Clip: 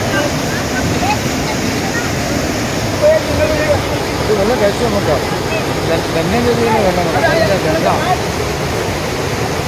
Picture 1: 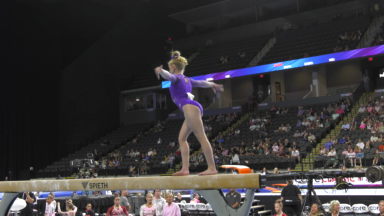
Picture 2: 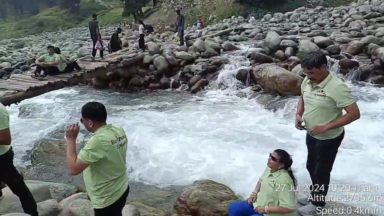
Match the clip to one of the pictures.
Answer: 2